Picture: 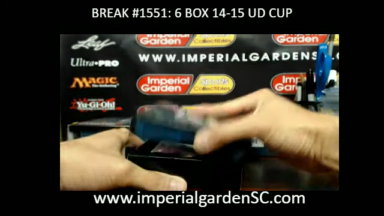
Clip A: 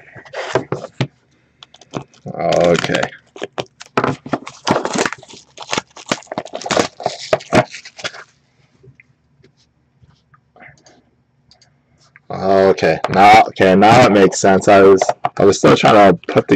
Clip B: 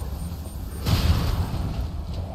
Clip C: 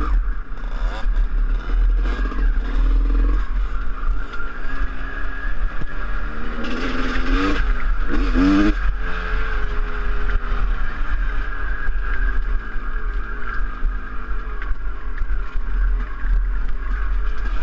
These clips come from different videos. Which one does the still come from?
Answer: A